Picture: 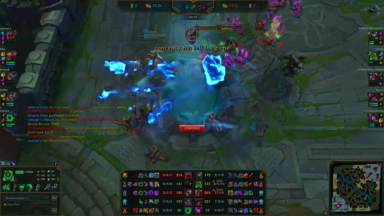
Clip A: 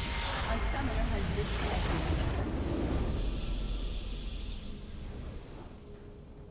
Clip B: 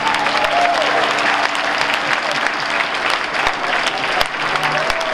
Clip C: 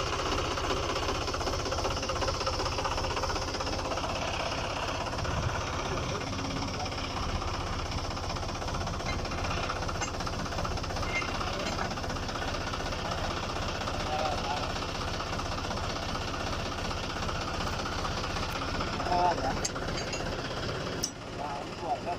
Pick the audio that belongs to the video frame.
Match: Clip A